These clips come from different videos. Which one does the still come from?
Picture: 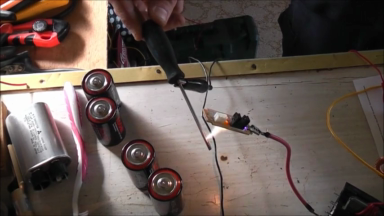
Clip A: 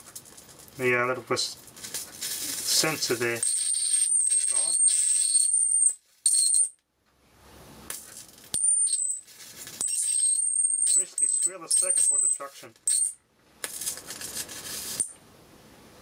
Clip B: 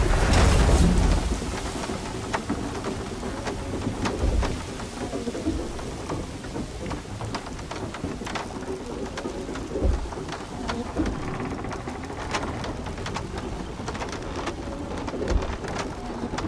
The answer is A